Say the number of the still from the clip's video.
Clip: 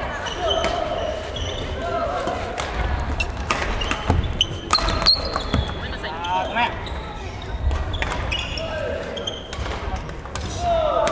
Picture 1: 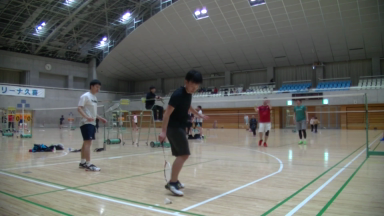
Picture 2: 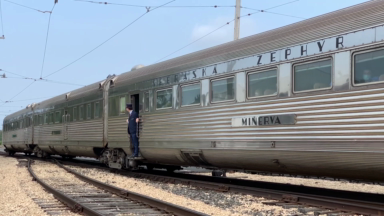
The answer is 1